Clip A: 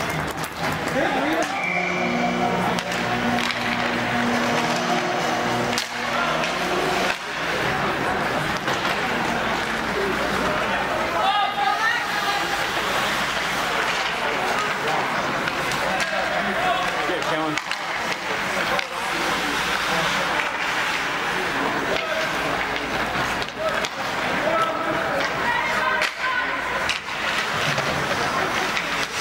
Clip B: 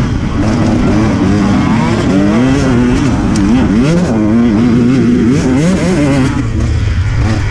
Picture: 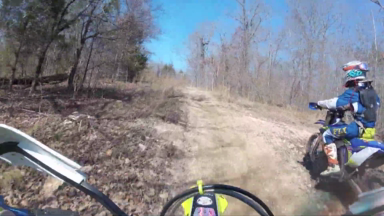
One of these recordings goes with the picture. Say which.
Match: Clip B